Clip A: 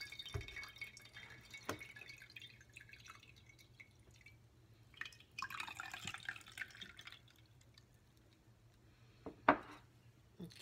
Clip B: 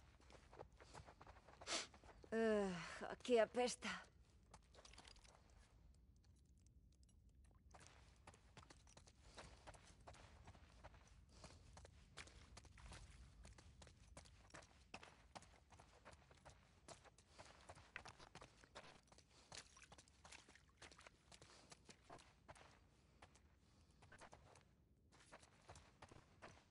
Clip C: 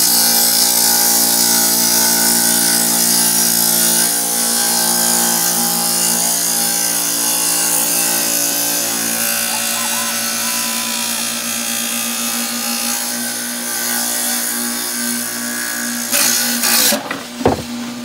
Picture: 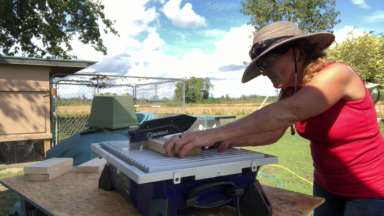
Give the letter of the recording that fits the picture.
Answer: C